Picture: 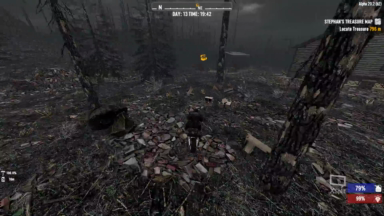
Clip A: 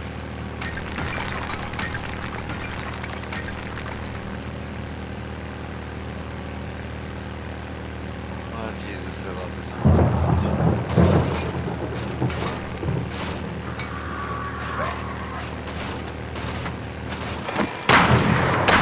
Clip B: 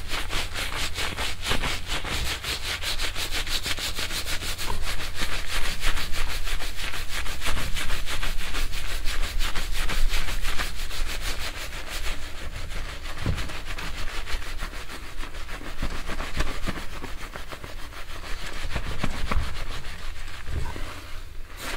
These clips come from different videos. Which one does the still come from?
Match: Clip A